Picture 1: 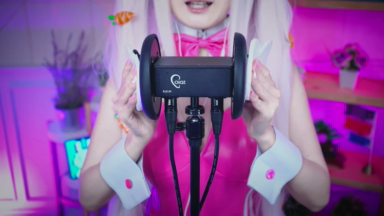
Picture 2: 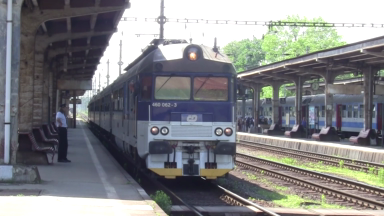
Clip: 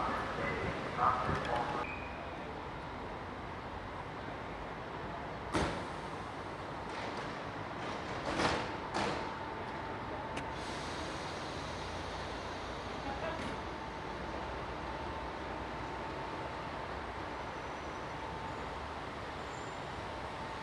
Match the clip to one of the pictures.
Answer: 2